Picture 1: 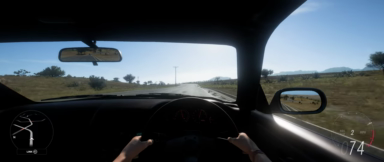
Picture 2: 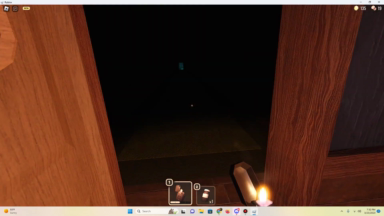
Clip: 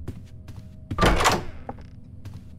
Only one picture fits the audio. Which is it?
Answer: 2